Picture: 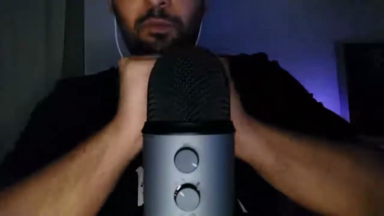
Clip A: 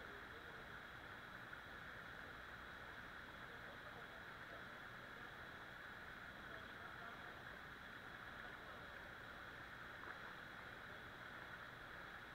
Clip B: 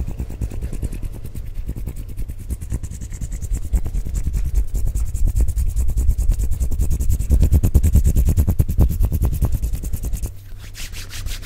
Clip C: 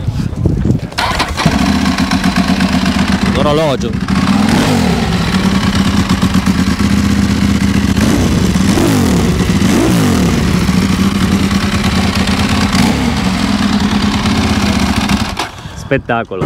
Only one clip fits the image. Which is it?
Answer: B